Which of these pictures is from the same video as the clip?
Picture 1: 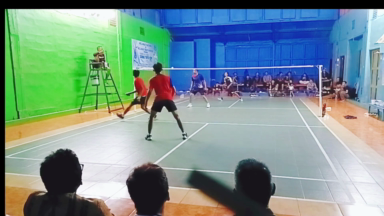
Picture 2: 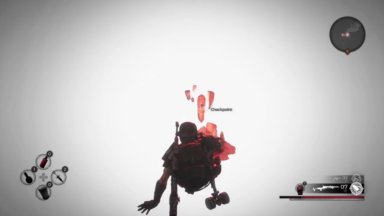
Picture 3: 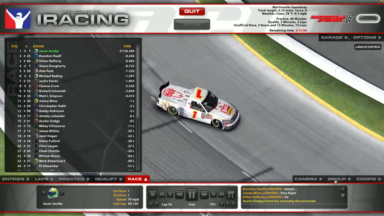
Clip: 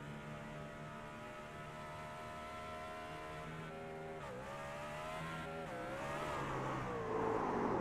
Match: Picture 3